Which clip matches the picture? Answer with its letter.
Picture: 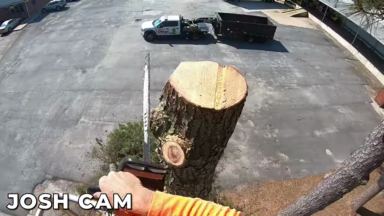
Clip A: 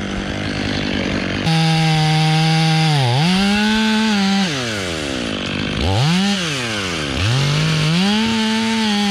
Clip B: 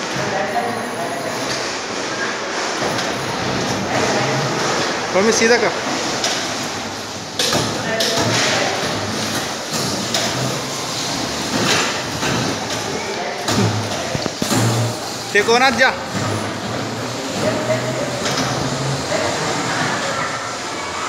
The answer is A